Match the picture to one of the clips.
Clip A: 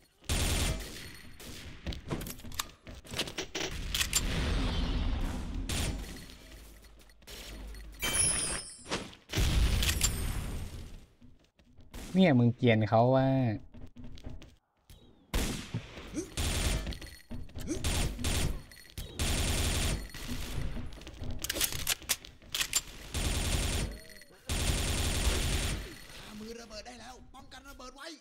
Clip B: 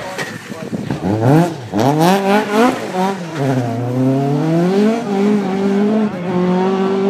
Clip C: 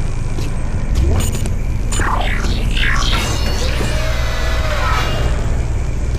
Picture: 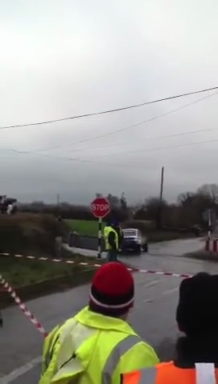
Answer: B